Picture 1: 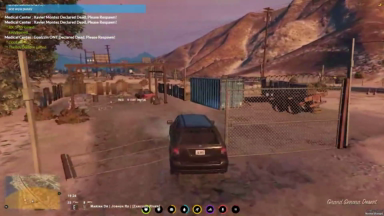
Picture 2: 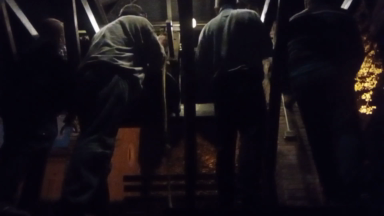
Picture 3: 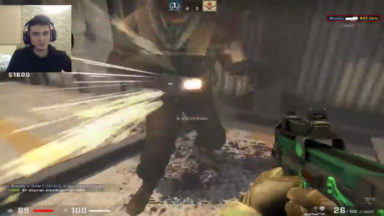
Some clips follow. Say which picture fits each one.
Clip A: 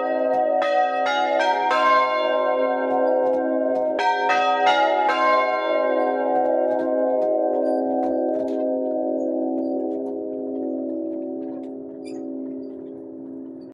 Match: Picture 2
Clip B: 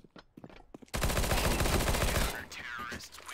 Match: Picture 3